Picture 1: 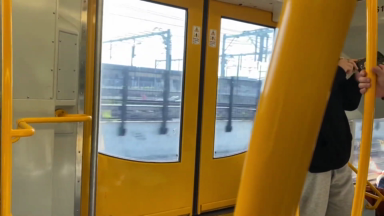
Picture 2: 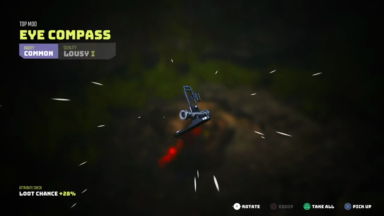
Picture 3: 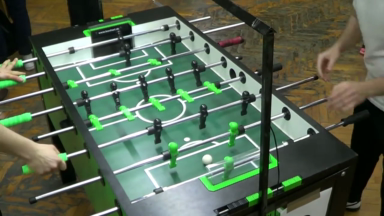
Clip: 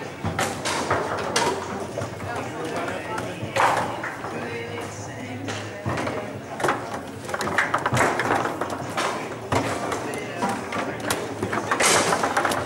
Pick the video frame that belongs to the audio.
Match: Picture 3